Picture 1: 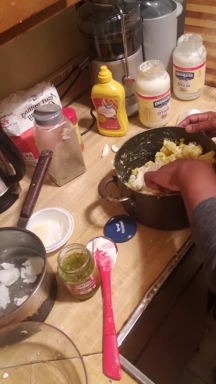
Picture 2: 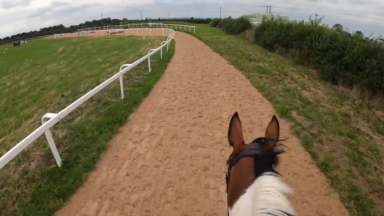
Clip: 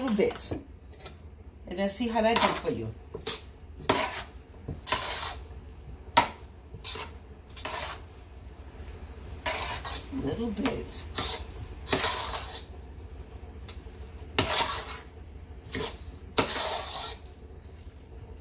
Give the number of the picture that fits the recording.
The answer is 1